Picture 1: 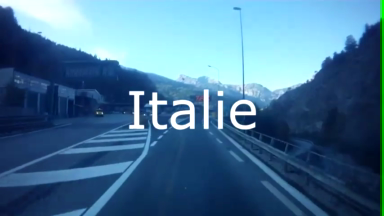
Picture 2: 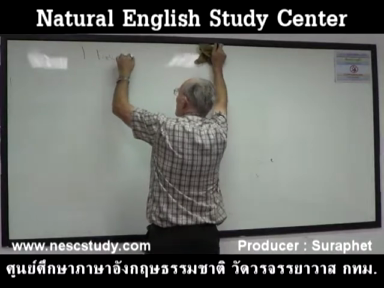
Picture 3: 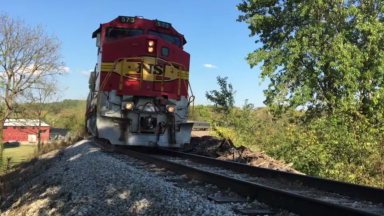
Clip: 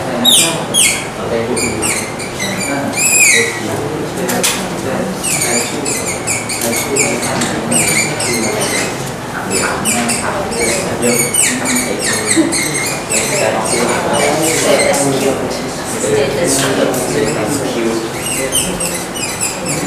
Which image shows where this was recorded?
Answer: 2